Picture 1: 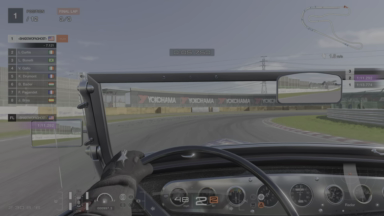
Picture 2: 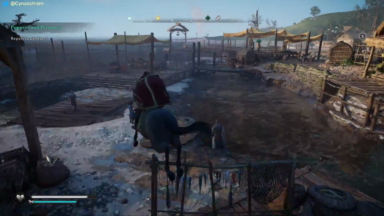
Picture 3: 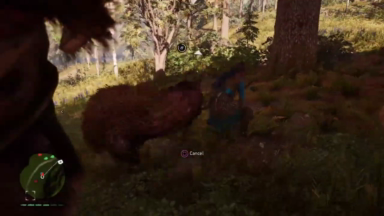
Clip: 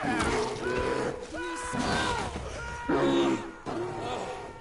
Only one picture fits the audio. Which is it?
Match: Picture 3